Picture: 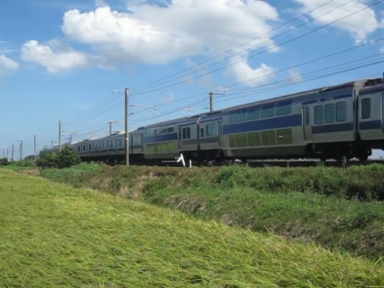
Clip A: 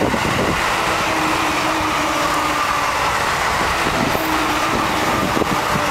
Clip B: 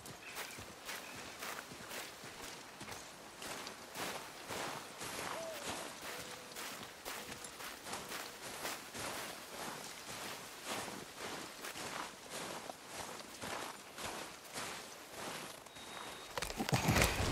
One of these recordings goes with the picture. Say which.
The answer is A